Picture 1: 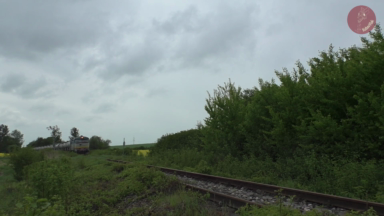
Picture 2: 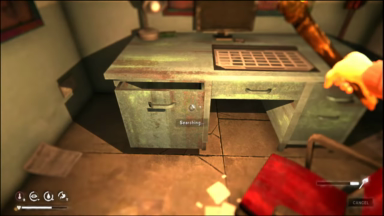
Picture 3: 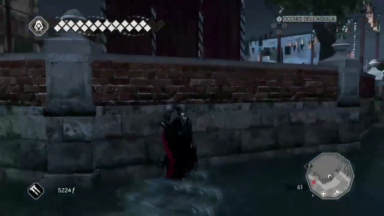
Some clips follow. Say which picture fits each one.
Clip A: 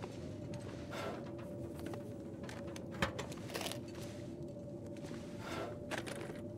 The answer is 2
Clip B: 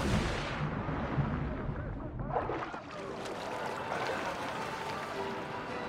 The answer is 3